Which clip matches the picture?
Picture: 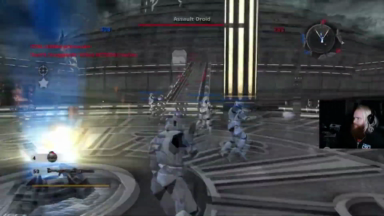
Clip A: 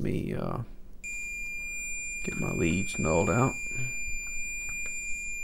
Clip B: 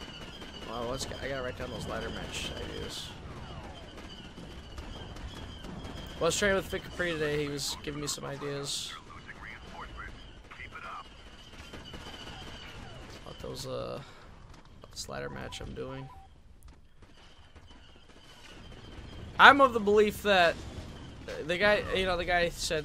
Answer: B